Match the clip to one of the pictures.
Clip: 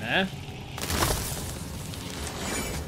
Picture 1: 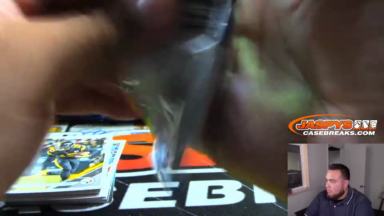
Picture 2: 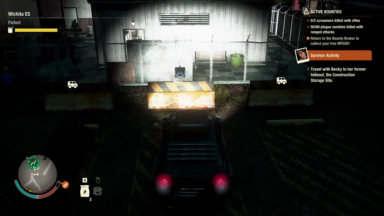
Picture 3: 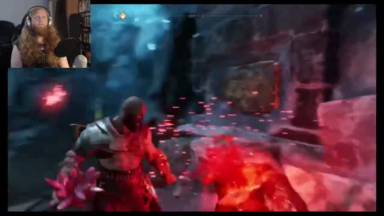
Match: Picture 3